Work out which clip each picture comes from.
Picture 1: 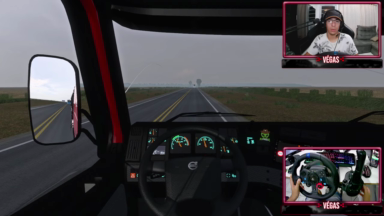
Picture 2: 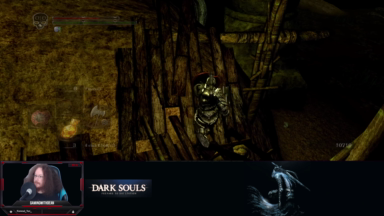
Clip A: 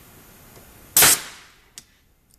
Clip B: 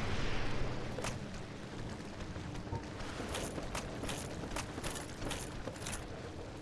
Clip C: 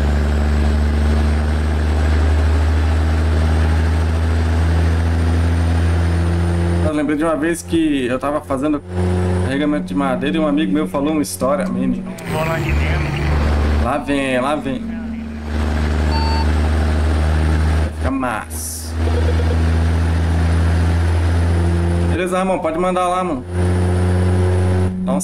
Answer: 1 C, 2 B